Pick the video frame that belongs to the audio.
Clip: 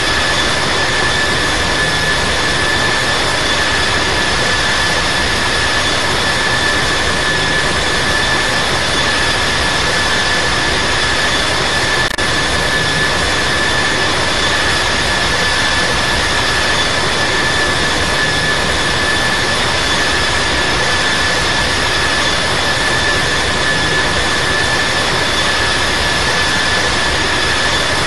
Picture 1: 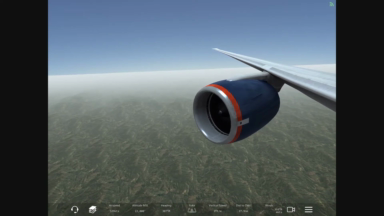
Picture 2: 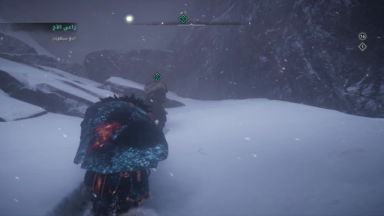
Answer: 1